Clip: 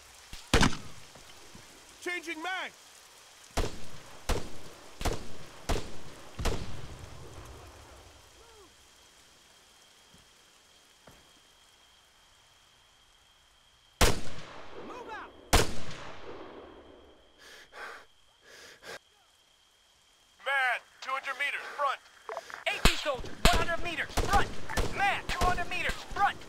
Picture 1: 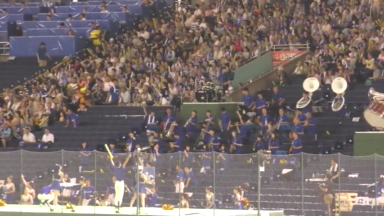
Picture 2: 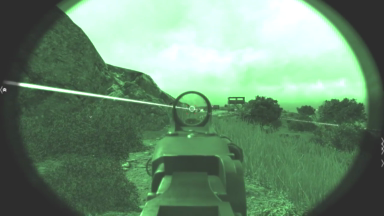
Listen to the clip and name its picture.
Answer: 2